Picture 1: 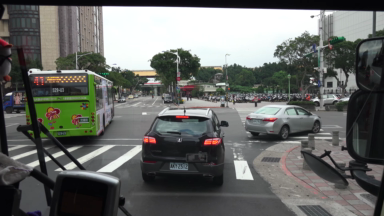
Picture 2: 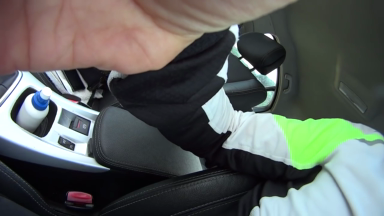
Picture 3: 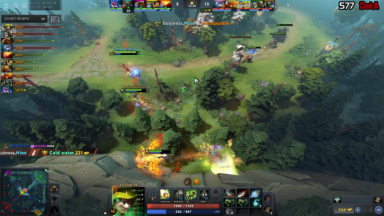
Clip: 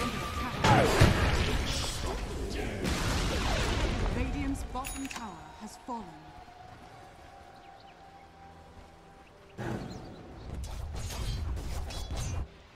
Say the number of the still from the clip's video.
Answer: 3